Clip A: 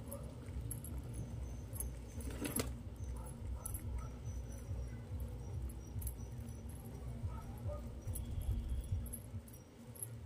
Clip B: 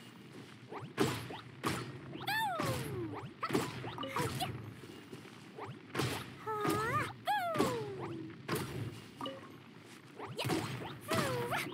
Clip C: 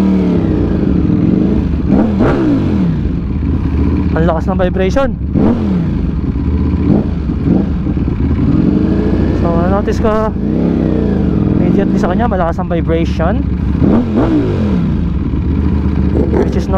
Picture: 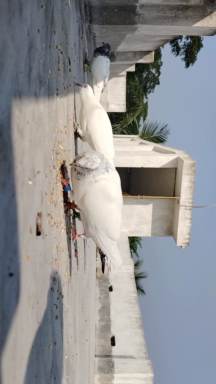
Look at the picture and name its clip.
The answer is A